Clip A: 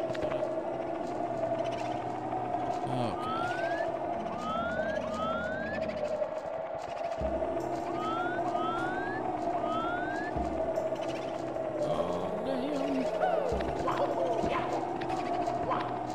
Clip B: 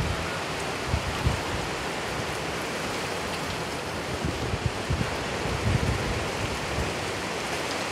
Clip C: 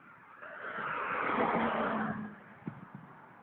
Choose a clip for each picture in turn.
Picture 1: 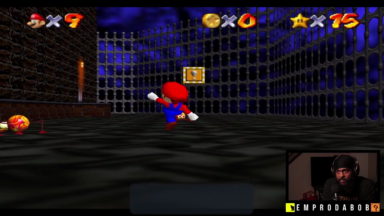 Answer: A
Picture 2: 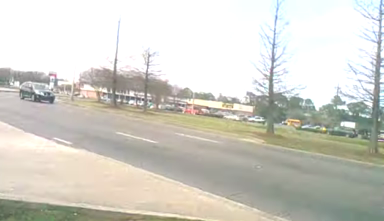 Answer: C